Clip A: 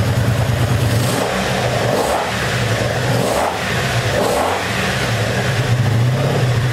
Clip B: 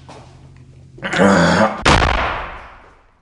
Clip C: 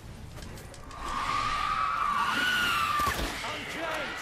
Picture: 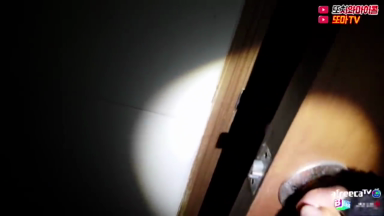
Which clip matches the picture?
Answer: B